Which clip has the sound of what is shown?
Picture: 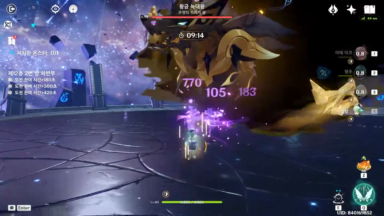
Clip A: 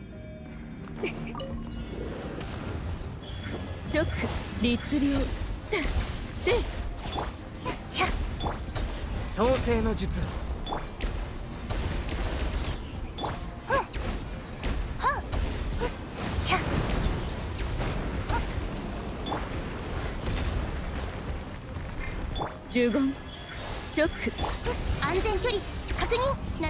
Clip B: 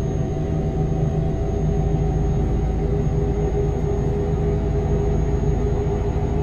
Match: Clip A